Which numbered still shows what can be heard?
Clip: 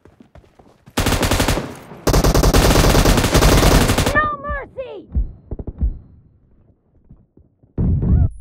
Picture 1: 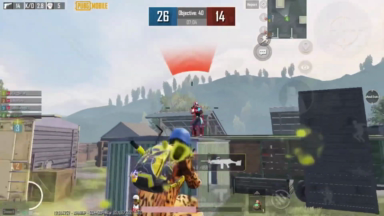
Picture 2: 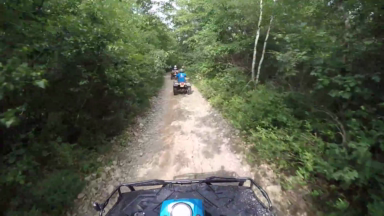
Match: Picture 1